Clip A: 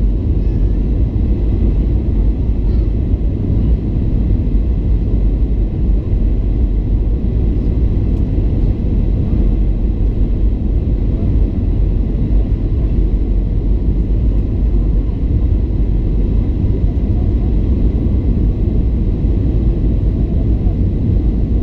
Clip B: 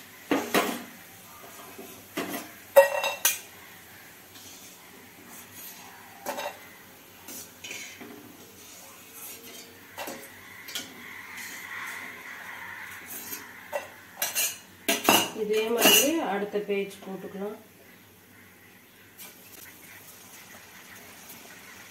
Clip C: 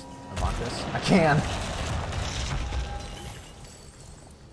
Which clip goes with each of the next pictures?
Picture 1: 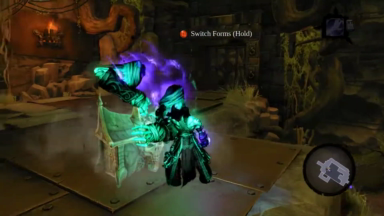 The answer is C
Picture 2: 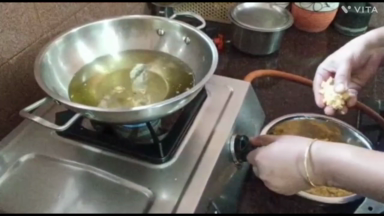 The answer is B